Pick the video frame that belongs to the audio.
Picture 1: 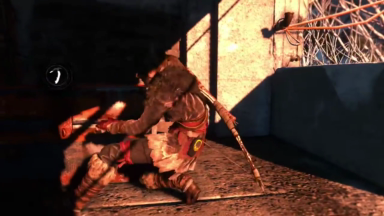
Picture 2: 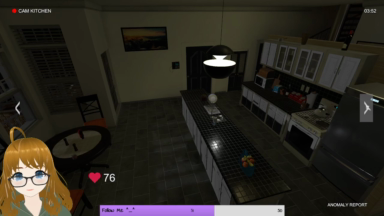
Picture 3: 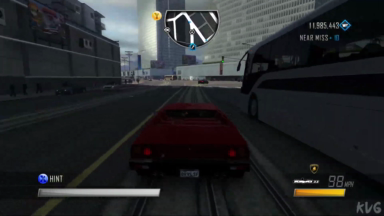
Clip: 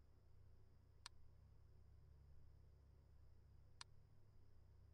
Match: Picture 2